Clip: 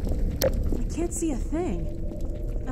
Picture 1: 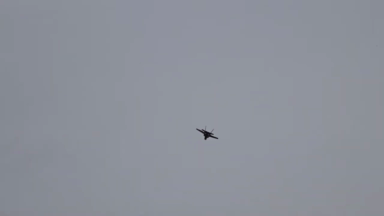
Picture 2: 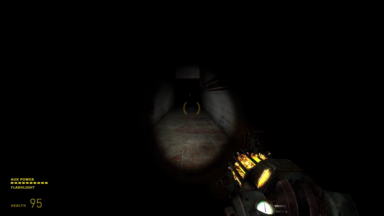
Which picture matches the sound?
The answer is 2